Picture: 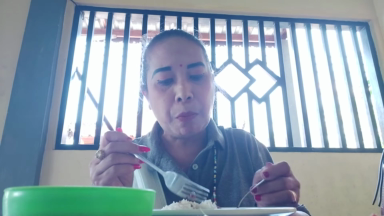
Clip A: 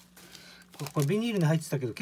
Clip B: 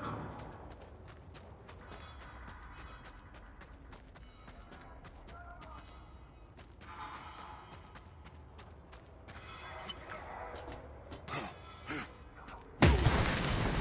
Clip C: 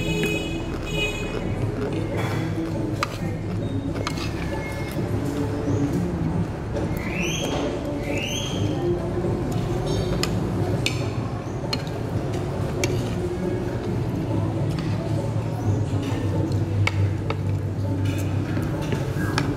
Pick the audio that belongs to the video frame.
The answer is C